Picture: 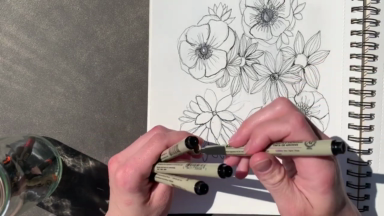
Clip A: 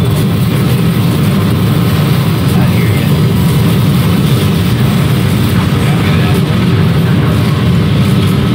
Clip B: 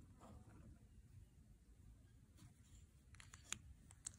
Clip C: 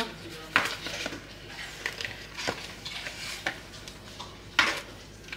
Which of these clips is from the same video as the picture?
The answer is B